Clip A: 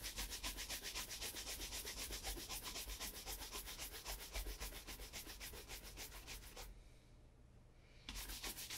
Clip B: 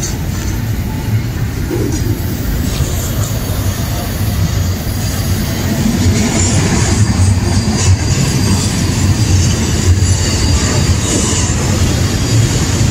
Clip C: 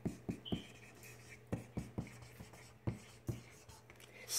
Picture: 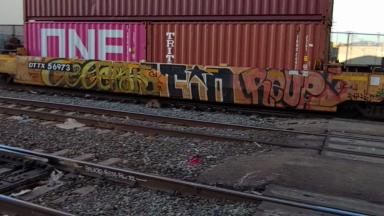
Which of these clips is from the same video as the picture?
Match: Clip B